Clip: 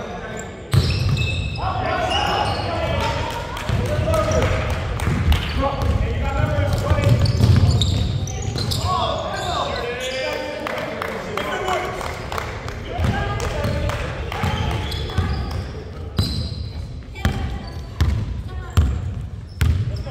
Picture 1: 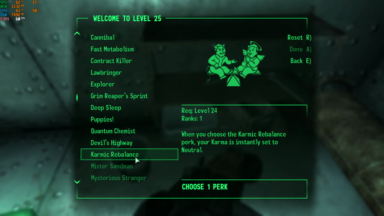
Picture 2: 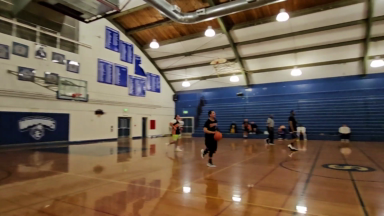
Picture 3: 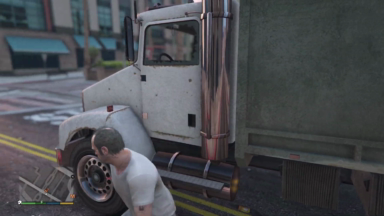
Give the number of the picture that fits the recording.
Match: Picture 2